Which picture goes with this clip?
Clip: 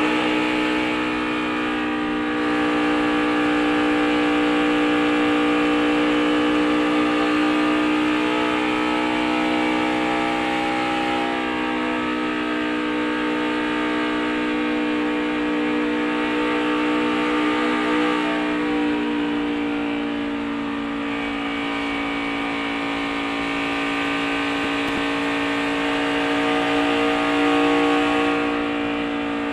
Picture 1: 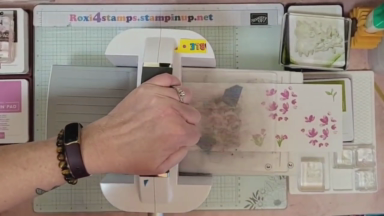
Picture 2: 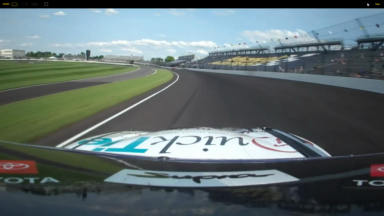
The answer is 2